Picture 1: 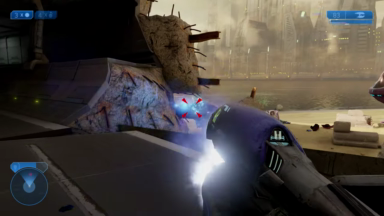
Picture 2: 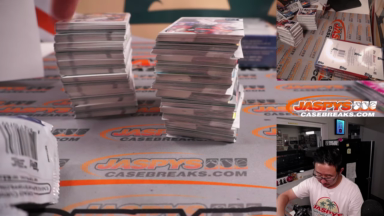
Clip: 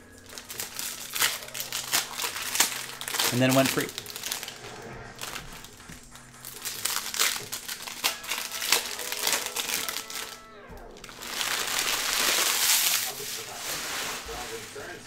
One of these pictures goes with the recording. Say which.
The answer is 2